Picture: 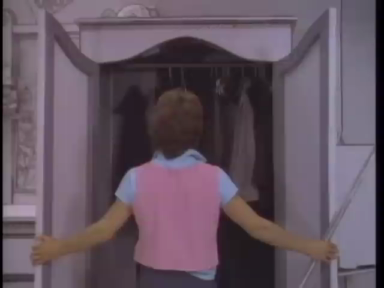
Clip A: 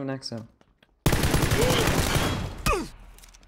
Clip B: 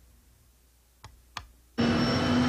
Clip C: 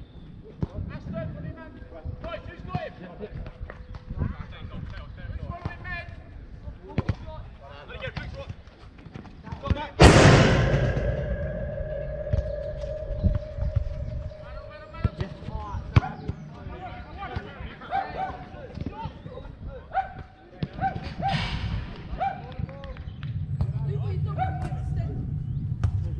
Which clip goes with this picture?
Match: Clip B